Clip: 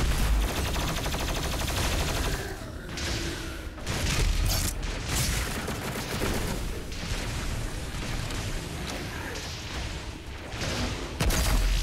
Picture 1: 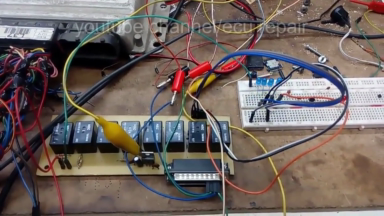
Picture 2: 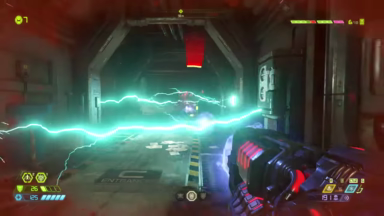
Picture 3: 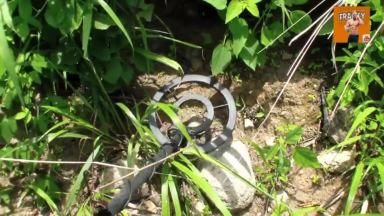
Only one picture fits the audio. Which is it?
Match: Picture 2